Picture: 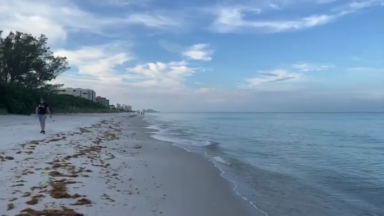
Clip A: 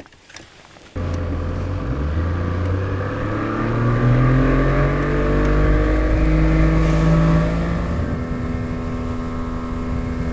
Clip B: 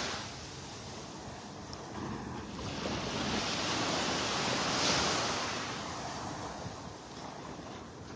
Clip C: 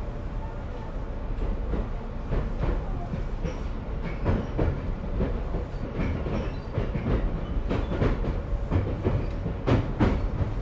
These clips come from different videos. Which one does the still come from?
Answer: B